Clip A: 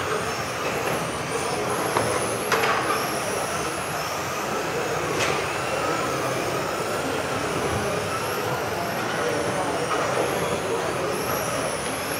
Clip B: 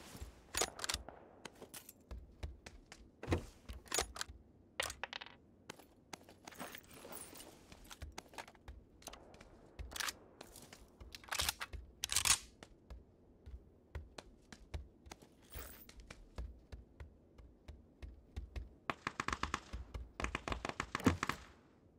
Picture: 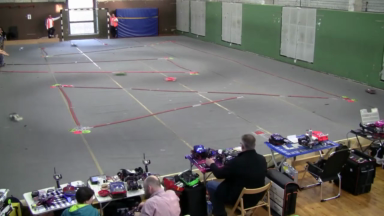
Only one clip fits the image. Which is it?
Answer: A